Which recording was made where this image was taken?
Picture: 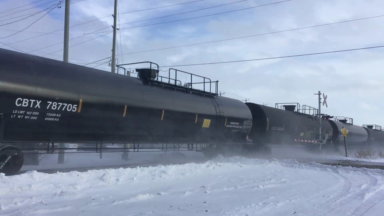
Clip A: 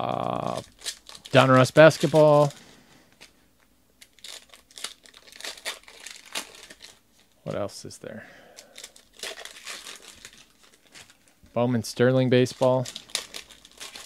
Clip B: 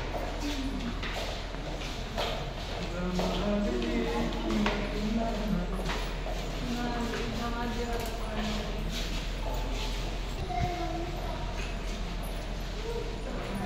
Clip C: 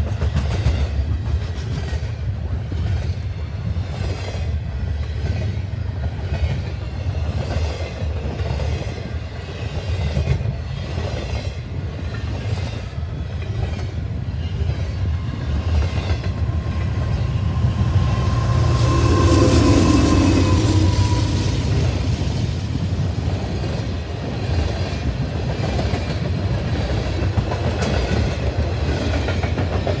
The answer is C